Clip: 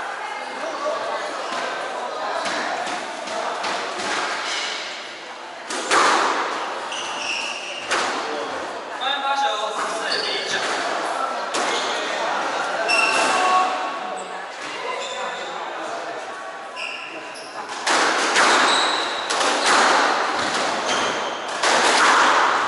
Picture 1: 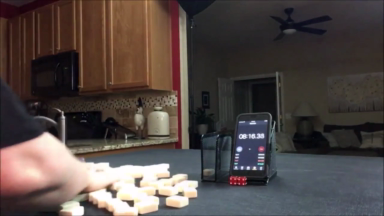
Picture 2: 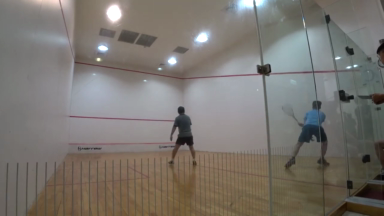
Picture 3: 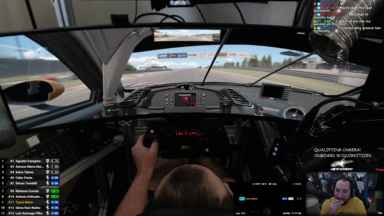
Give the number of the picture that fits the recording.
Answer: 2